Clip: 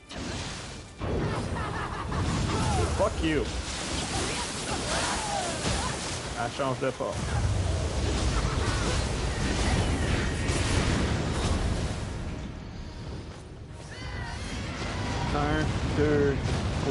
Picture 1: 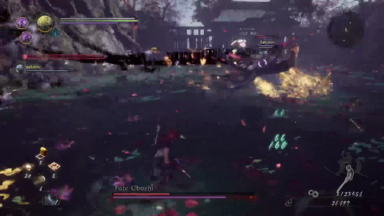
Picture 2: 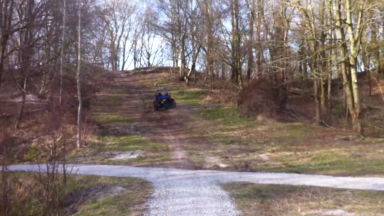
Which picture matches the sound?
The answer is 1